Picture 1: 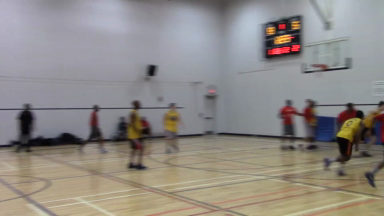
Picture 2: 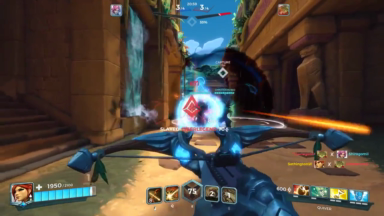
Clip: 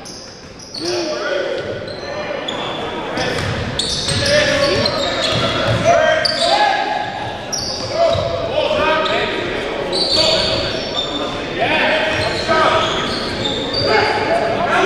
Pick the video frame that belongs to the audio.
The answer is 1